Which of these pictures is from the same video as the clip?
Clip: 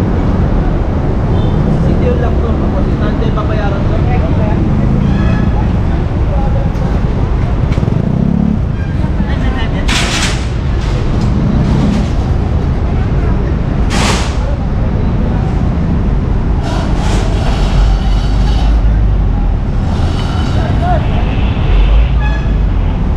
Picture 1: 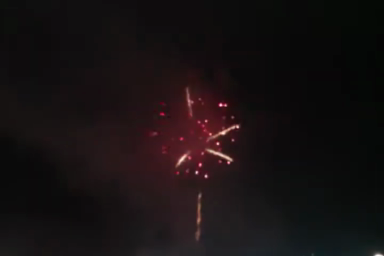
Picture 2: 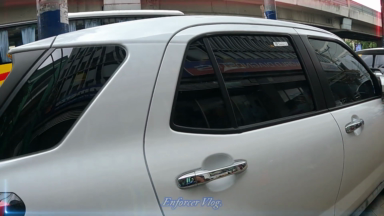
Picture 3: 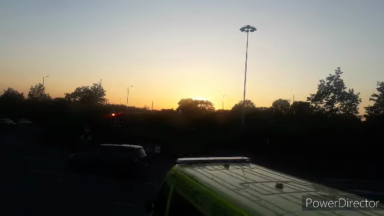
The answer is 2